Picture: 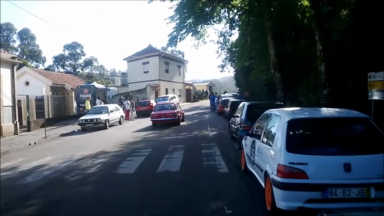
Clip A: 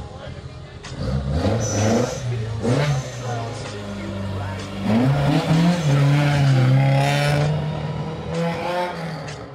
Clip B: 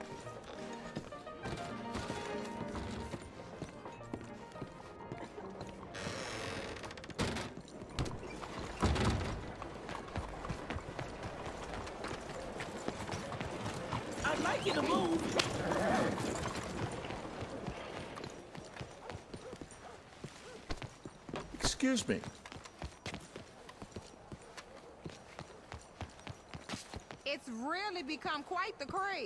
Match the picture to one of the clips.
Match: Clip A